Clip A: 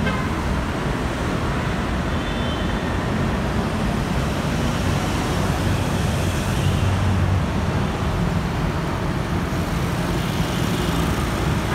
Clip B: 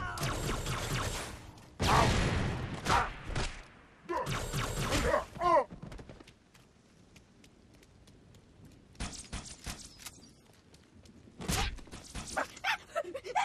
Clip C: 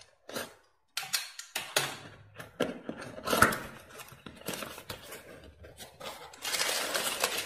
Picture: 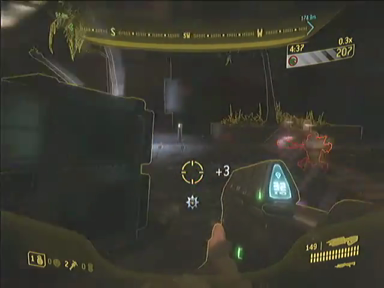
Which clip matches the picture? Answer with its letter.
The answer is B